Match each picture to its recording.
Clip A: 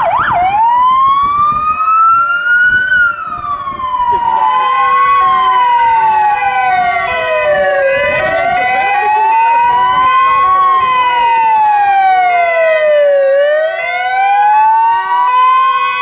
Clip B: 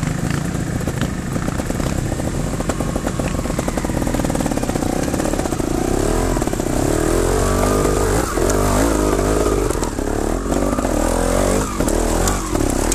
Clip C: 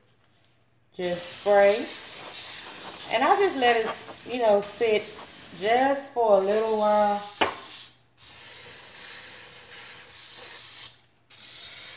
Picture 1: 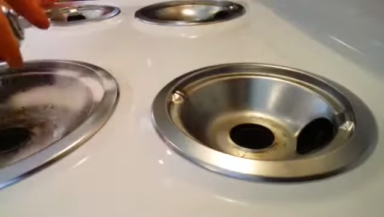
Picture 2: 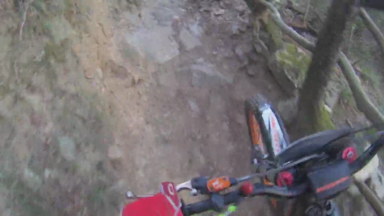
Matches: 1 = C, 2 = B